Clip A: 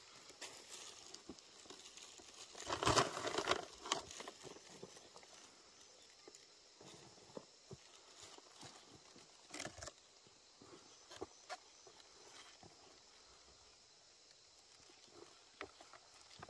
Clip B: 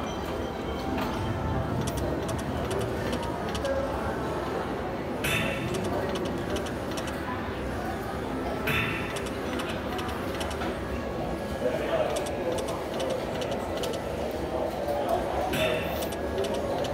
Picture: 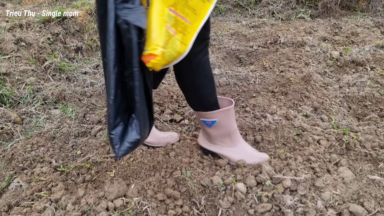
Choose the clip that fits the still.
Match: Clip A